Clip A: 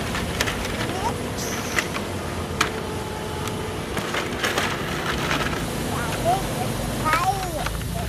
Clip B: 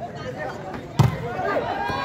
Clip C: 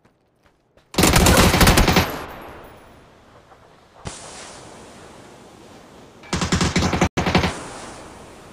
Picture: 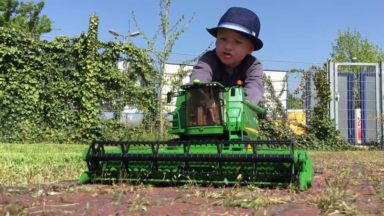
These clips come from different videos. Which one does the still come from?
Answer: A